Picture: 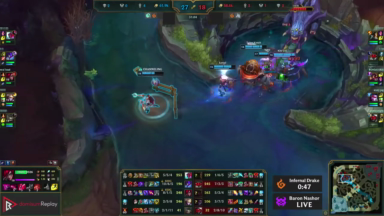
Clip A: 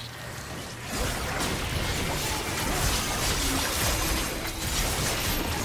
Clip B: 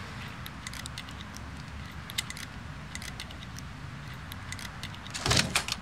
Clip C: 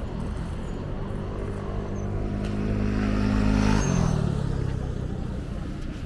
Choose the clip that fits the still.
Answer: A